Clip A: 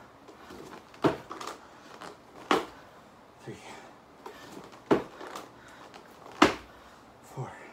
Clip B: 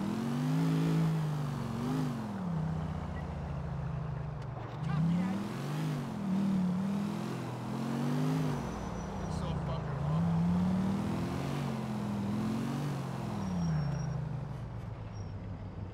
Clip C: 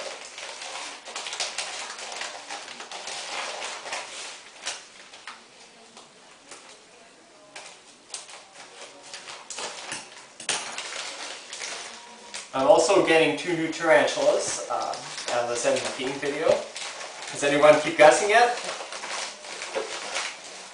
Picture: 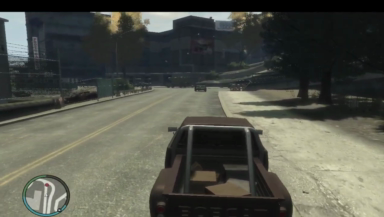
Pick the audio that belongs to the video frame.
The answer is B